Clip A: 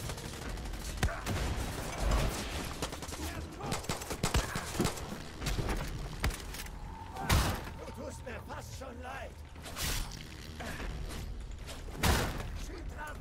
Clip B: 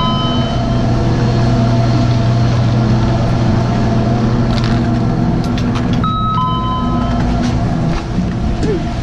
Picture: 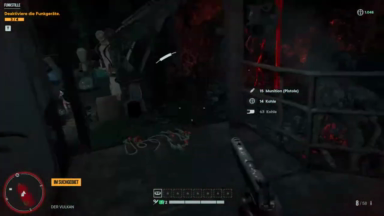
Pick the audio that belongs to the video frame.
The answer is A